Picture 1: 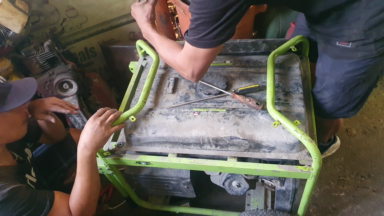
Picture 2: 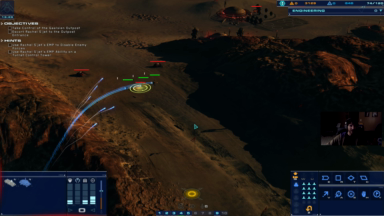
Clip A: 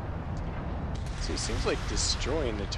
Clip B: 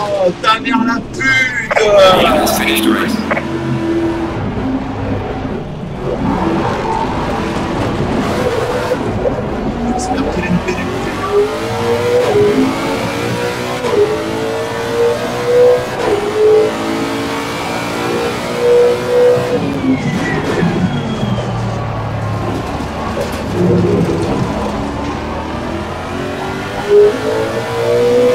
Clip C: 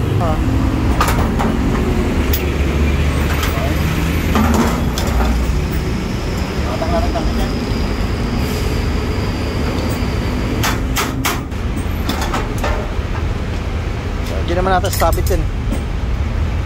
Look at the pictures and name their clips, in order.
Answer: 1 C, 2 A